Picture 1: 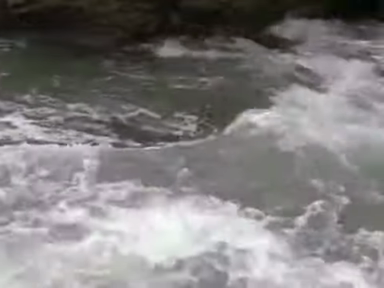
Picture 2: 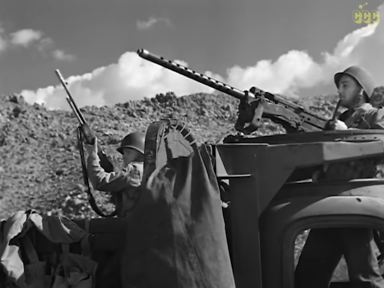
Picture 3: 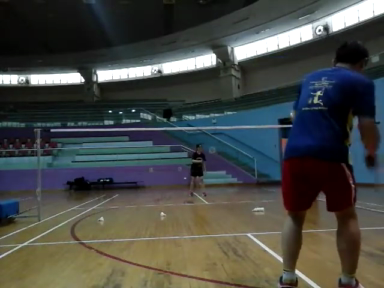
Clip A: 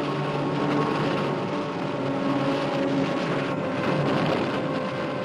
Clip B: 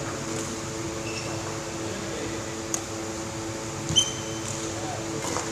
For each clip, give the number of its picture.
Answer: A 1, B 3